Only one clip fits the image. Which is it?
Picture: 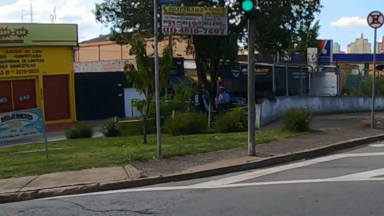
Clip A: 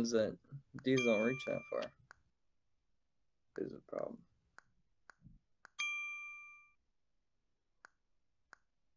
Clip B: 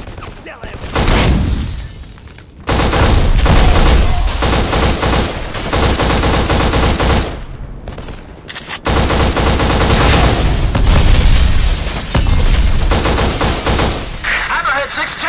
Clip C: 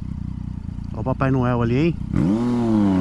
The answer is C